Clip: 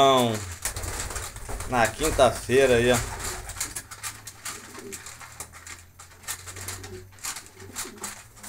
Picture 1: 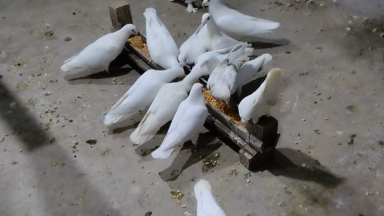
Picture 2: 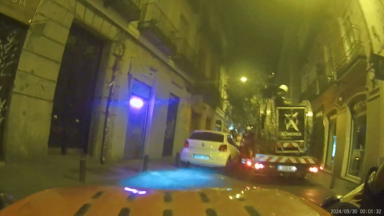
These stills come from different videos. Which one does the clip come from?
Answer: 1